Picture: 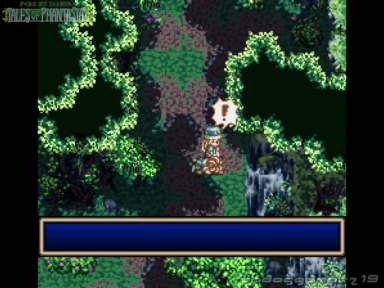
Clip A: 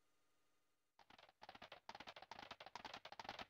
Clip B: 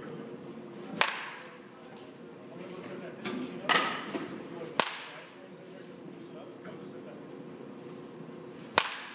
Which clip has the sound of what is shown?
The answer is A